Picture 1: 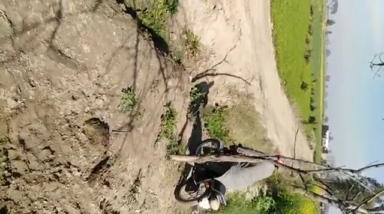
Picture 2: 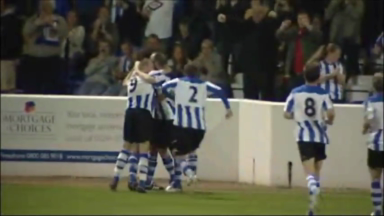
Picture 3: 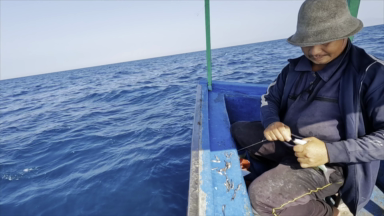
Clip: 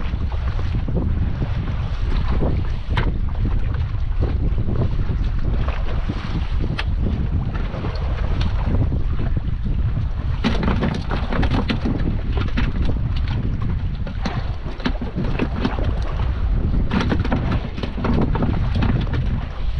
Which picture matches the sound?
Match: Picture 3